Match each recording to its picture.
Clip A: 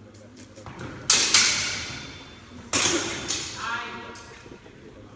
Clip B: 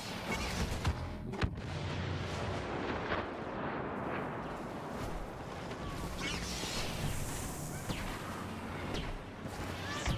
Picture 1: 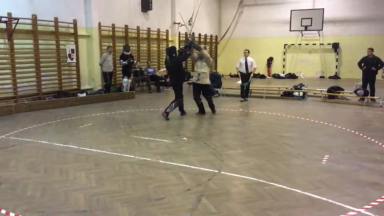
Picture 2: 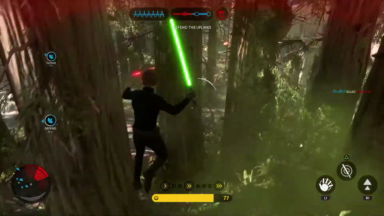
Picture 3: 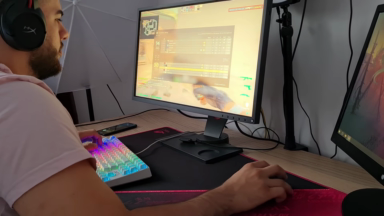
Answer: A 1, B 2